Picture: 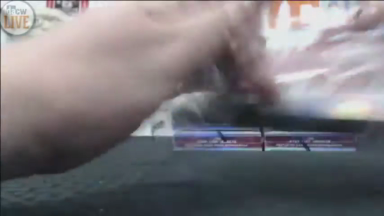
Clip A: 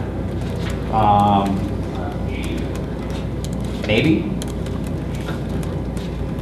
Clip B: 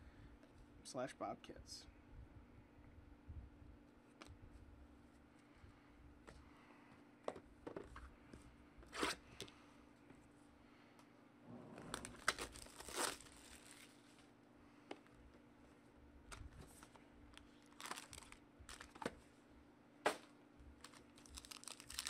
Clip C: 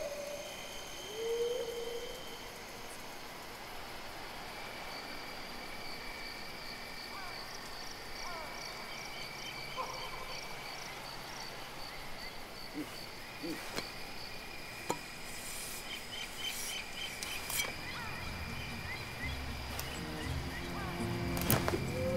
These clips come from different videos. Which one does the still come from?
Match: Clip B